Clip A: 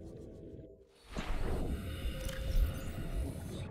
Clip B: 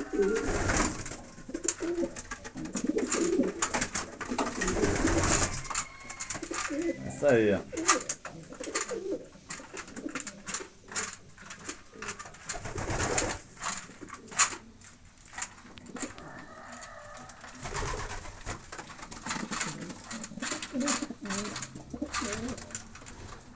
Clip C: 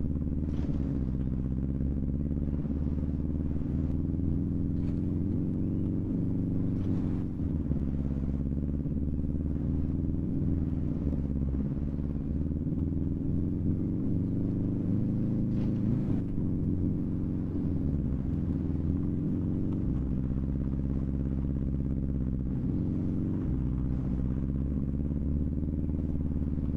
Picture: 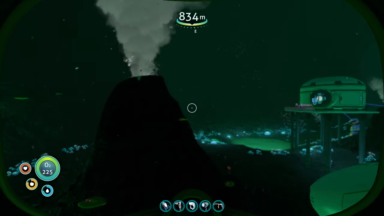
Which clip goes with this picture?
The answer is A